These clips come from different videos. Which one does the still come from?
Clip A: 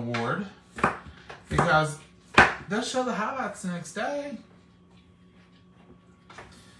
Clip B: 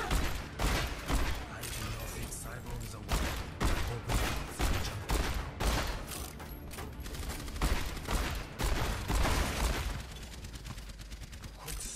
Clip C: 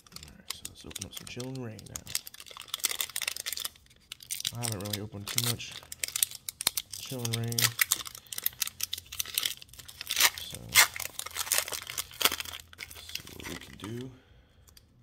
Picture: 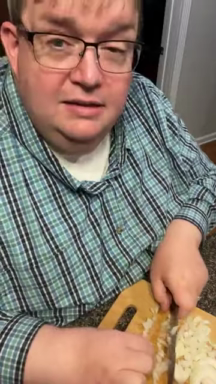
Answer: A